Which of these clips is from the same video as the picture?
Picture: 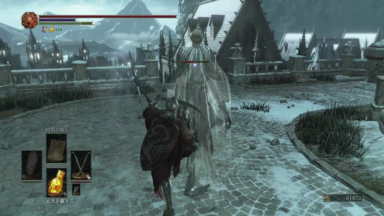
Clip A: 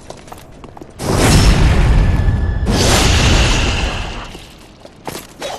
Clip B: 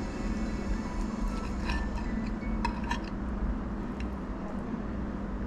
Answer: A